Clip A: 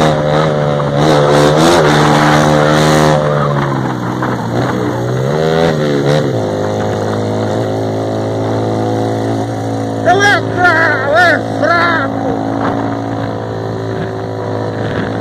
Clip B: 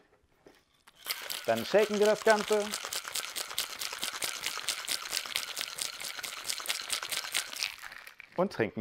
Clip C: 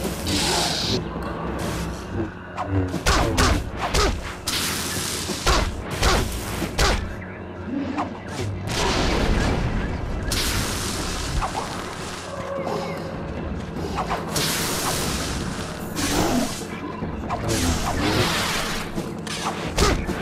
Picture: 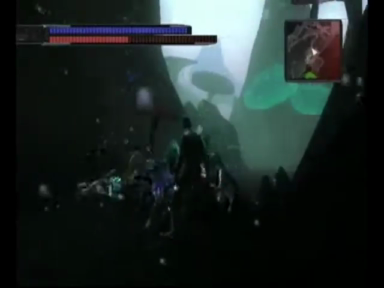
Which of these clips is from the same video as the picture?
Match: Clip C